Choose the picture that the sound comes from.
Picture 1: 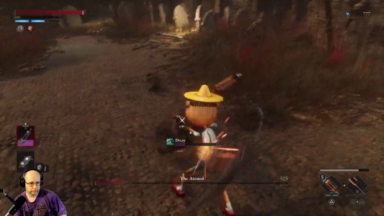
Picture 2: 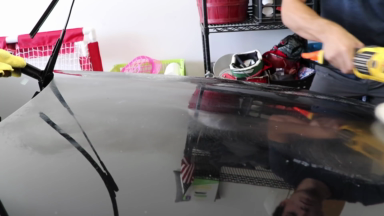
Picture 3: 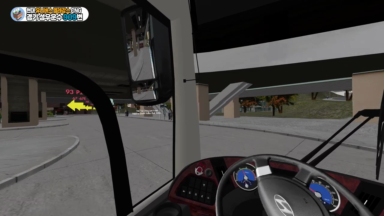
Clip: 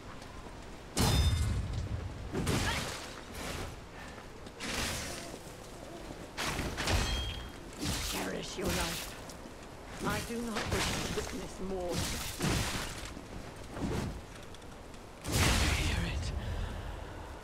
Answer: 1